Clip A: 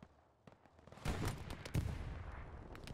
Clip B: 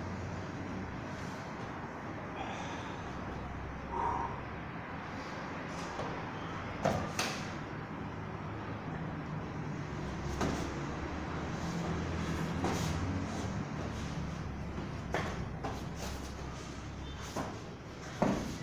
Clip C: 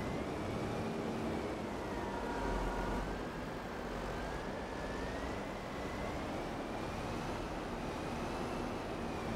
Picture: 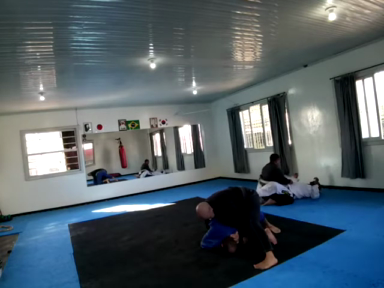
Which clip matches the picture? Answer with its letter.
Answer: B